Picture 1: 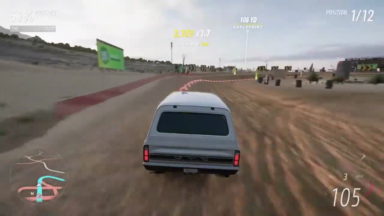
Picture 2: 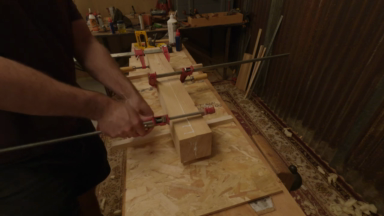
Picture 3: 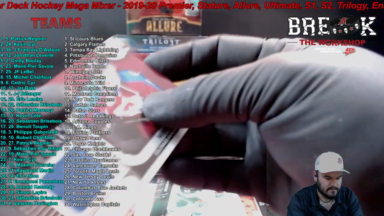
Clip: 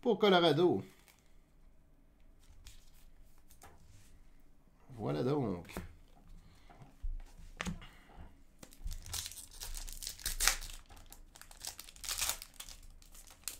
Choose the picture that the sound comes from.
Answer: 3